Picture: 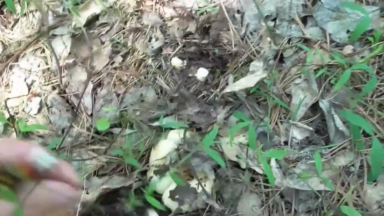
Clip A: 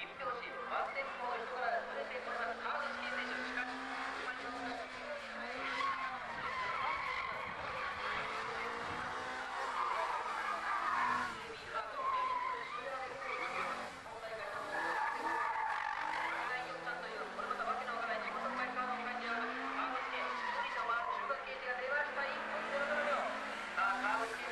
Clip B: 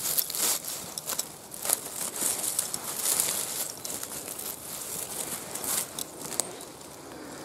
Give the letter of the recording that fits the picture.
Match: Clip B